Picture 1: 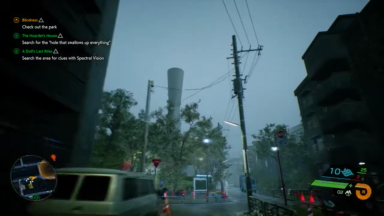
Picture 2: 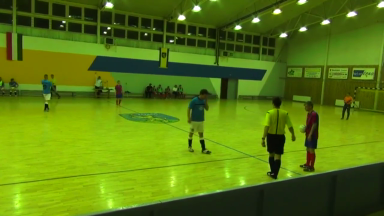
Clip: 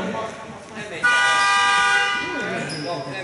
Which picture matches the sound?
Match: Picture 2